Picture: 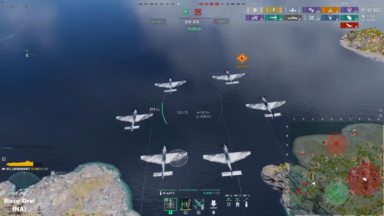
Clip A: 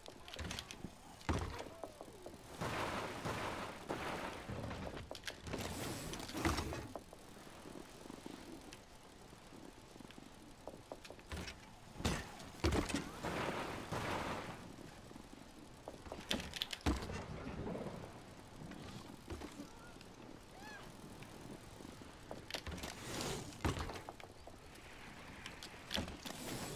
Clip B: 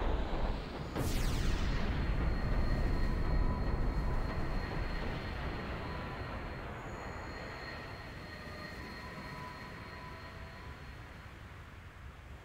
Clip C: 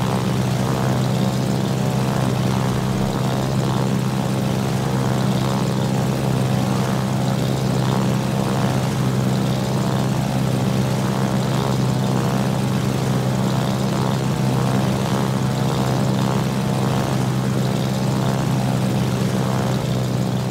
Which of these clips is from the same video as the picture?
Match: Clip C